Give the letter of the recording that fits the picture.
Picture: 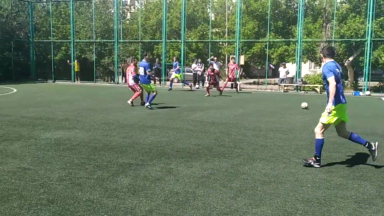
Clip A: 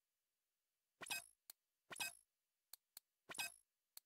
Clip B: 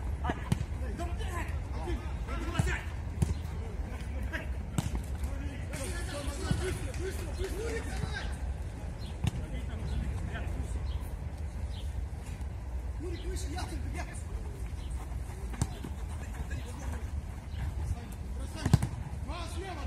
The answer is B